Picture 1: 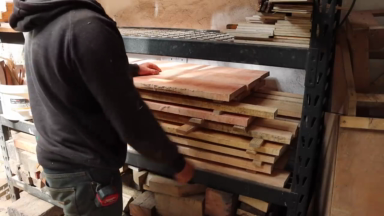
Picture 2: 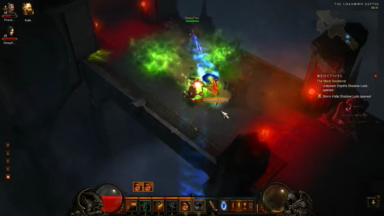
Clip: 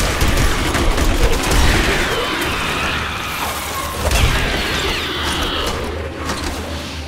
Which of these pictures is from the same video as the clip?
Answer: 2